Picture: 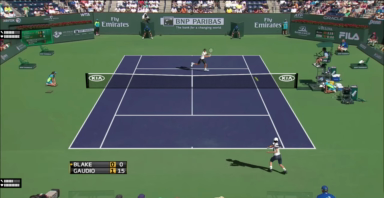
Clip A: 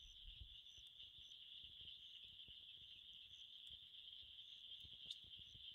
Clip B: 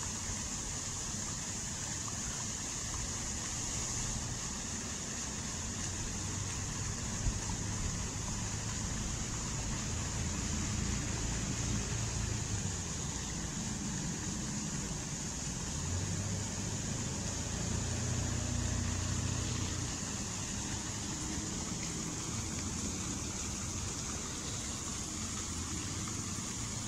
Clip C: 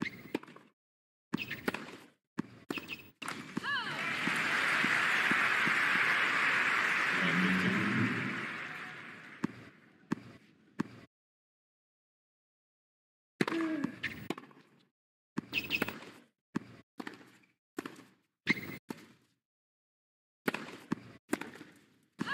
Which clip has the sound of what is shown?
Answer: C